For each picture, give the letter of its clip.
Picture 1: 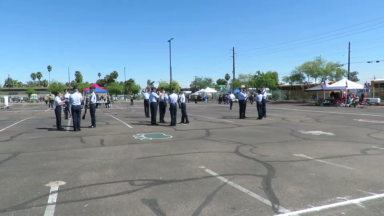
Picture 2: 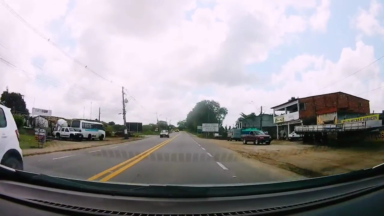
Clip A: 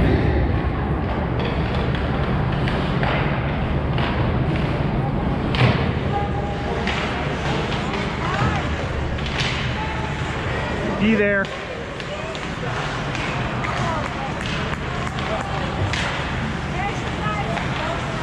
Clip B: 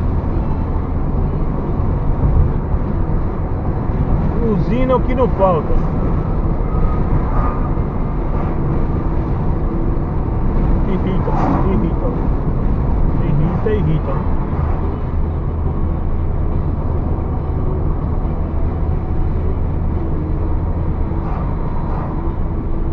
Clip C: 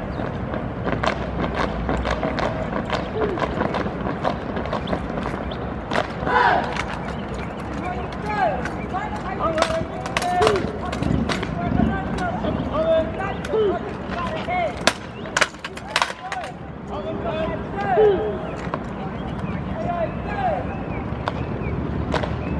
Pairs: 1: C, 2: B